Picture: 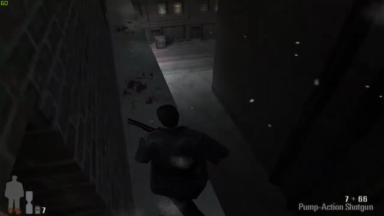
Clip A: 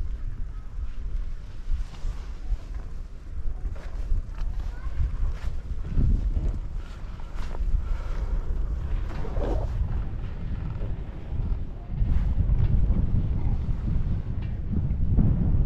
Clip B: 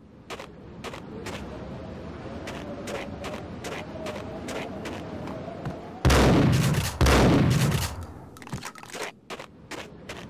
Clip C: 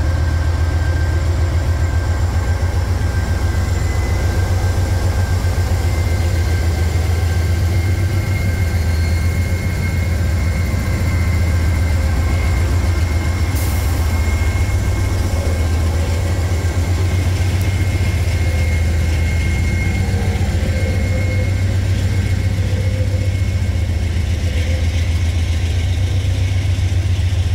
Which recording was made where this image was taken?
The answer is B